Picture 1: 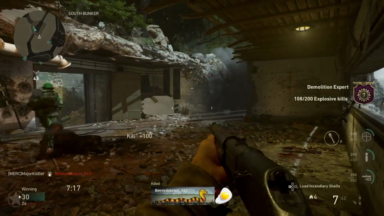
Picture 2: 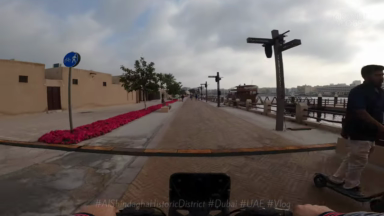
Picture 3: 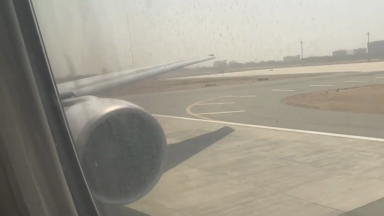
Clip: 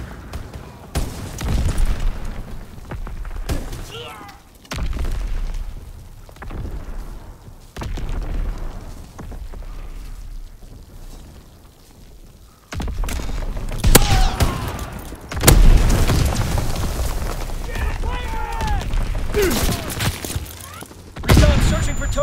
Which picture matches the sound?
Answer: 1